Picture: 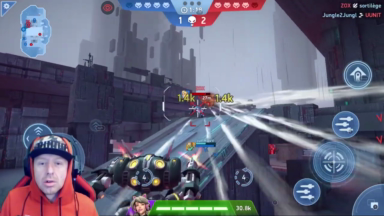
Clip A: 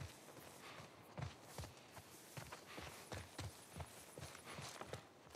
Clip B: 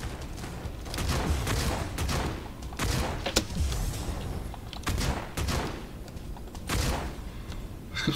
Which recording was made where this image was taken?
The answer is B